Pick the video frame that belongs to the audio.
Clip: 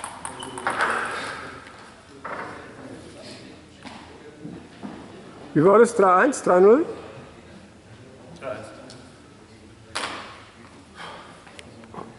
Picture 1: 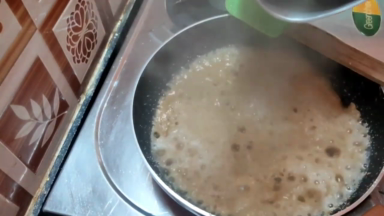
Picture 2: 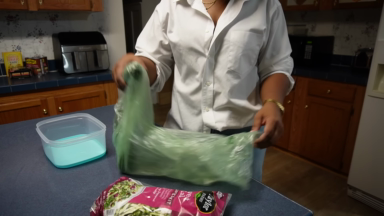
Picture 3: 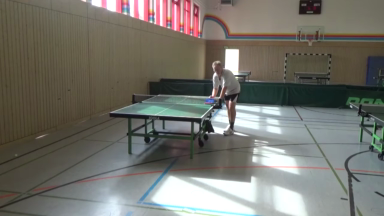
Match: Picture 3